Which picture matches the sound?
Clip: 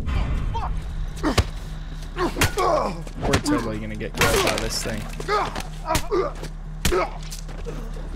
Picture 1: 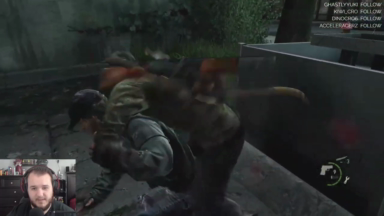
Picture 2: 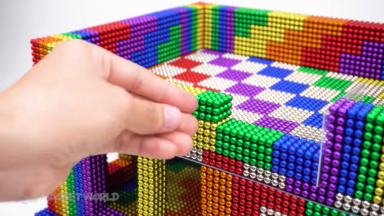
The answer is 1